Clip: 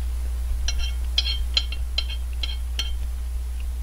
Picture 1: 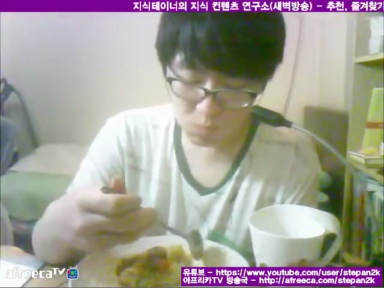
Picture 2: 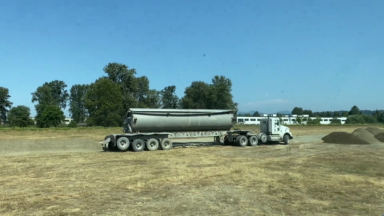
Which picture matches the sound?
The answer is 1